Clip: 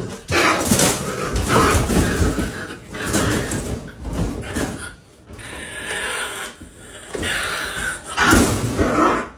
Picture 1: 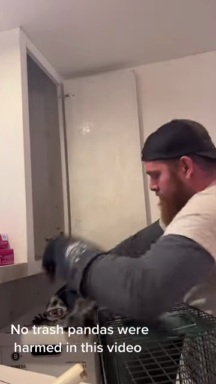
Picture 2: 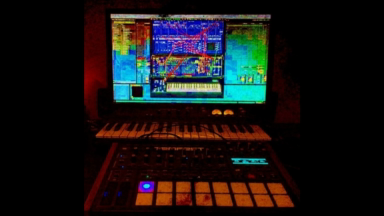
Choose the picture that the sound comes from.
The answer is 1